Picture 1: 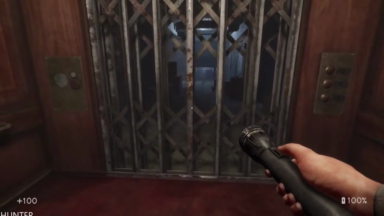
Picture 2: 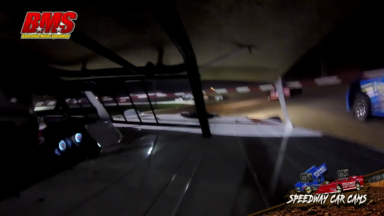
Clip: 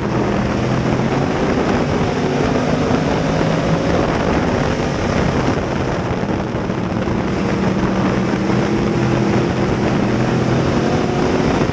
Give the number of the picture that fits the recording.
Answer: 2